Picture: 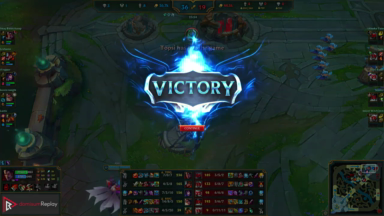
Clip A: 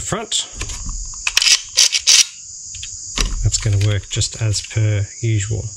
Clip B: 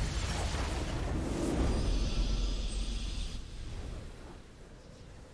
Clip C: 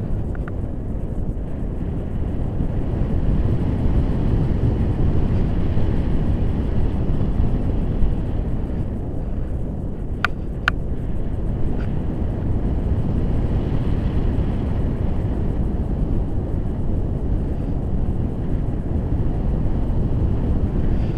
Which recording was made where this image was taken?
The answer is B